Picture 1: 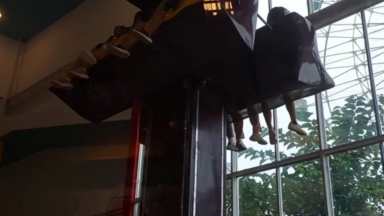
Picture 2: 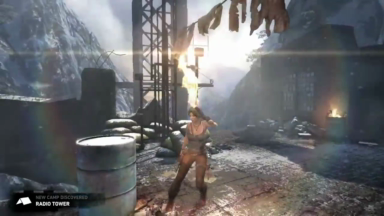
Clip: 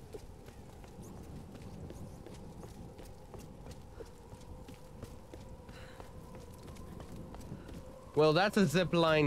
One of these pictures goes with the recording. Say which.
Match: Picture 2